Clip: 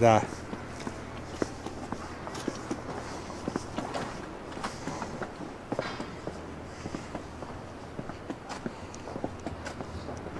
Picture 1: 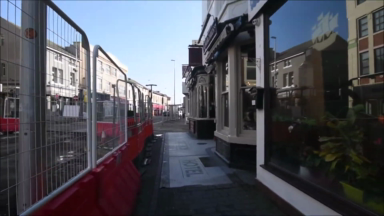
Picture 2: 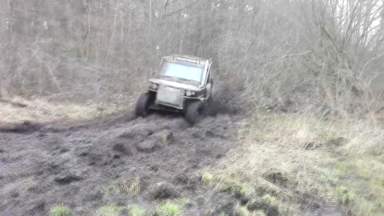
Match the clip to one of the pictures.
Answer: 1